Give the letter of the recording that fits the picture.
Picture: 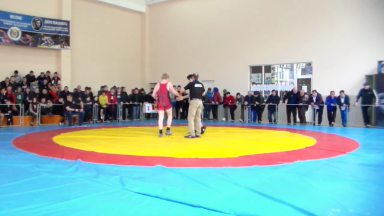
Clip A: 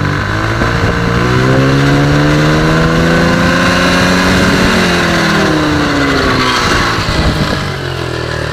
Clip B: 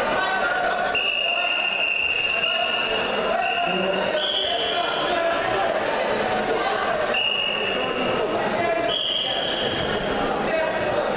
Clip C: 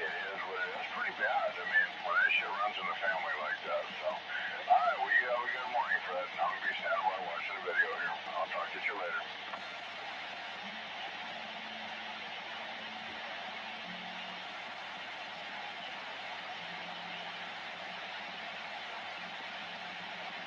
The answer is B